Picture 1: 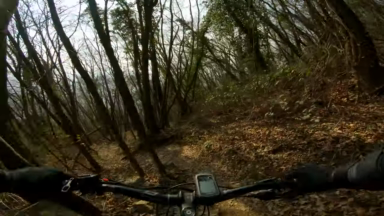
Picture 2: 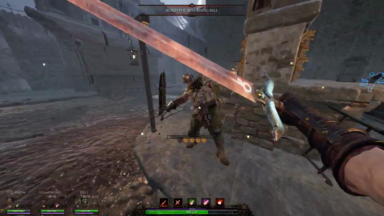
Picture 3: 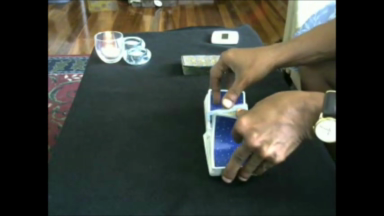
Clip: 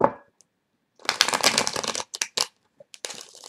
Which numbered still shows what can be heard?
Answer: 3